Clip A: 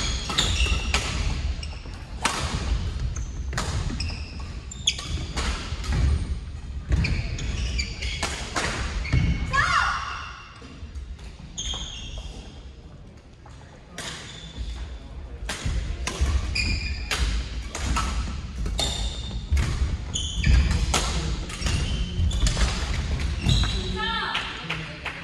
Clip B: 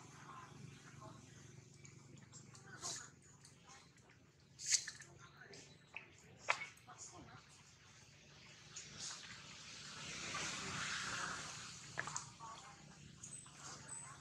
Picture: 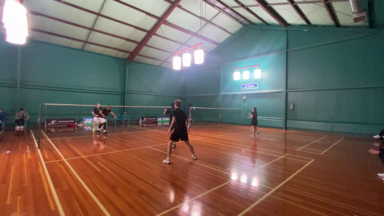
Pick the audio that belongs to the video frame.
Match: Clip A